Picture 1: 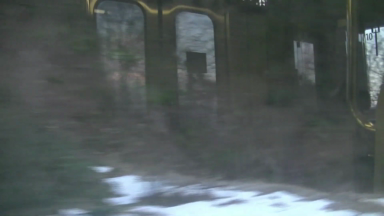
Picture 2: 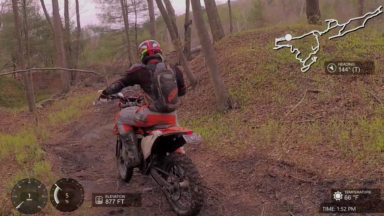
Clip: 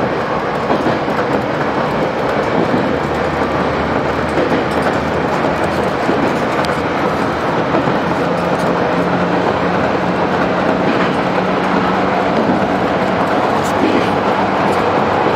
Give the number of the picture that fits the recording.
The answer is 1